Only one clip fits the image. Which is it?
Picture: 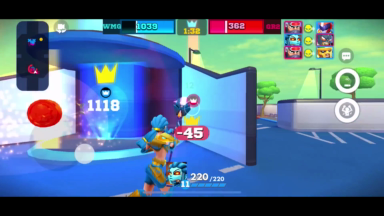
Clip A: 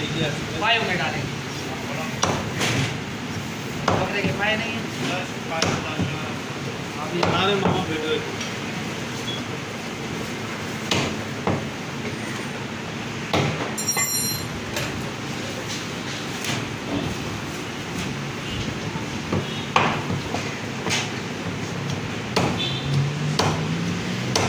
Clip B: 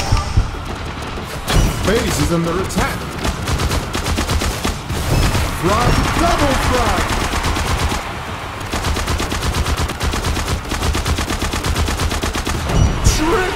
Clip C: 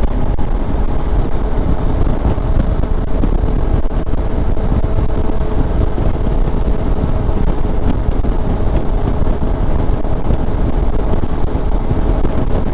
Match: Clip B